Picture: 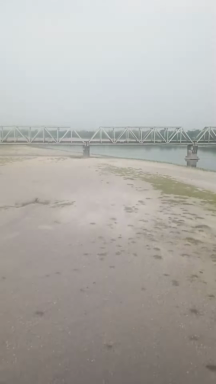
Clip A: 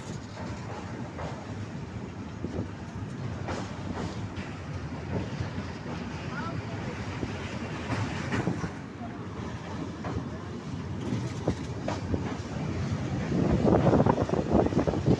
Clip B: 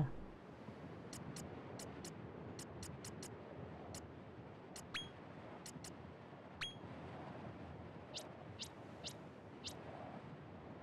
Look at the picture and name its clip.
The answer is A